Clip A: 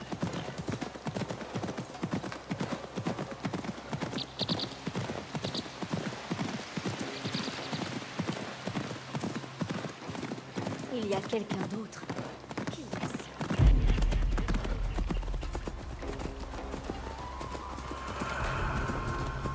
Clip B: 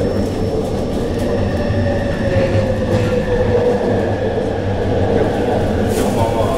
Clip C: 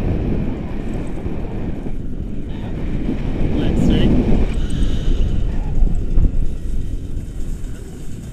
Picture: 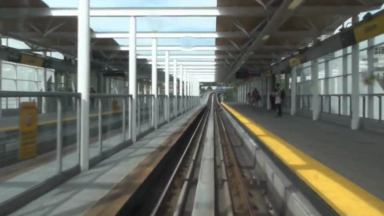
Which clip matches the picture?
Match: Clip B